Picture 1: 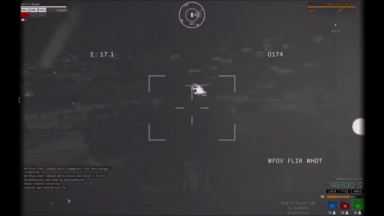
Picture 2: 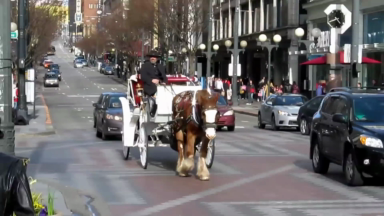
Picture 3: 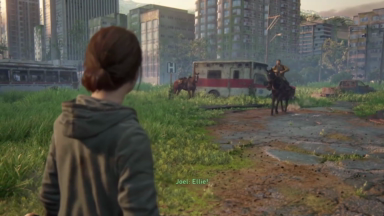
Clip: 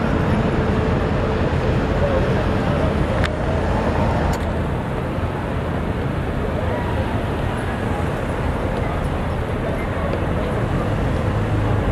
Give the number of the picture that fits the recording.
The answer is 2